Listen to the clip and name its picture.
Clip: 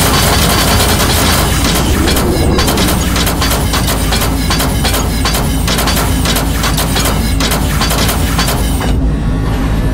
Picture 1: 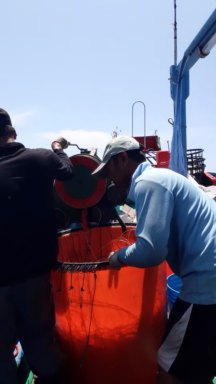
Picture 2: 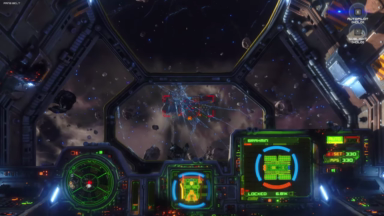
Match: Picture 2